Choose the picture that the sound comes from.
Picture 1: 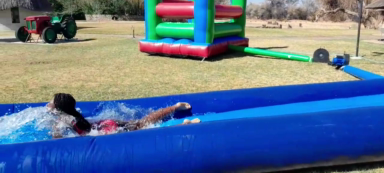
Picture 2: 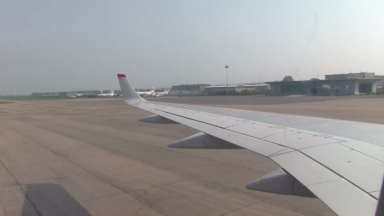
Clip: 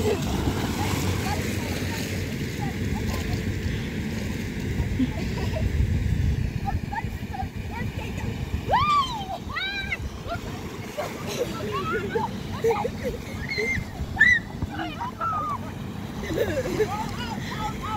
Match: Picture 1